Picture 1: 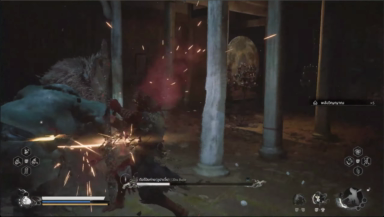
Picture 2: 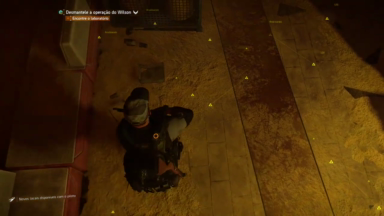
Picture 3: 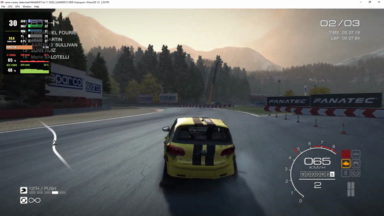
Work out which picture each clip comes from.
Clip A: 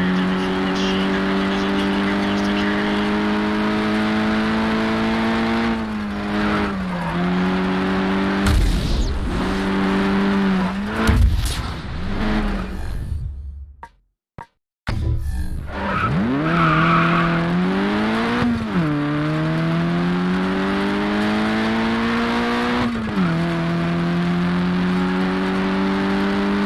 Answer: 3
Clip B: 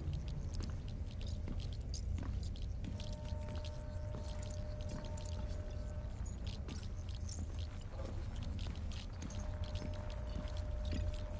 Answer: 2